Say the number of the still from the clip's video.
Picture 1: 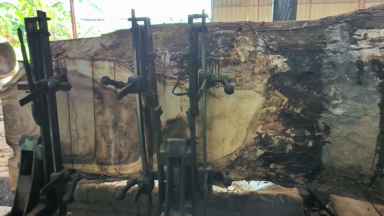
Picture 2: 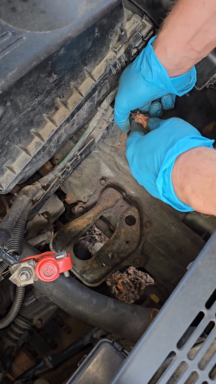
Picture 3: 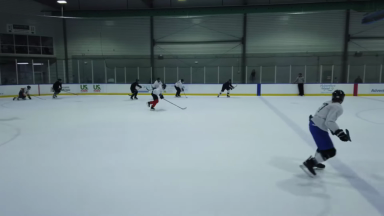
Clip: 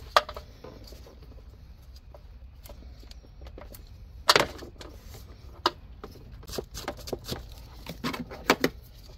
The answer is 2